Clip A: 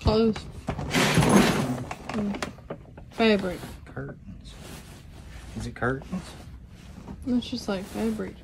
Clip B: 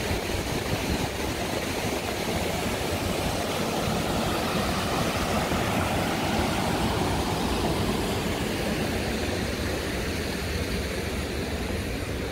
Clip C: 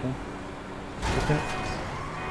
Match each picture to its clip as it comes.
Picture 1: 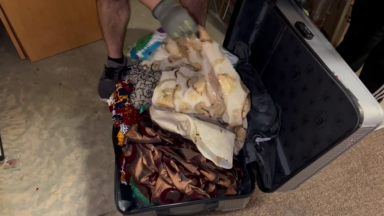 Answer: A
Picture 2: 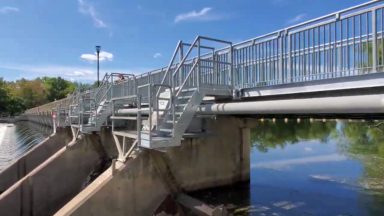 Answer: B